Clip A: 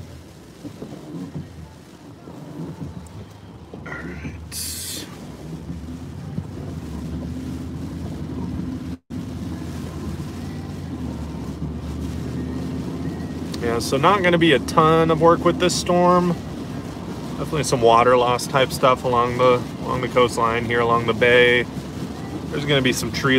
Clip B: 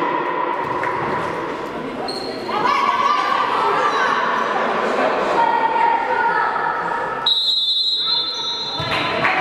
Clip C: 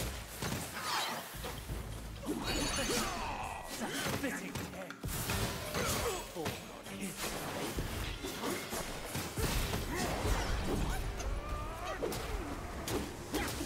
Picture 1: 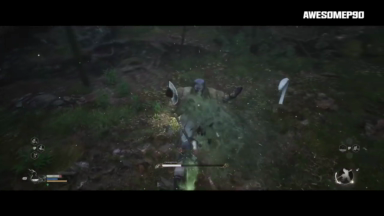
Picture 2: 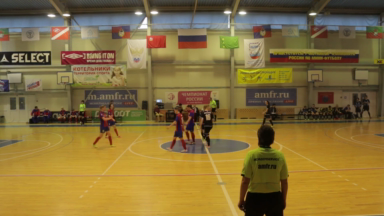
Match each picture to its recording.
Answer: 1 C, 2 B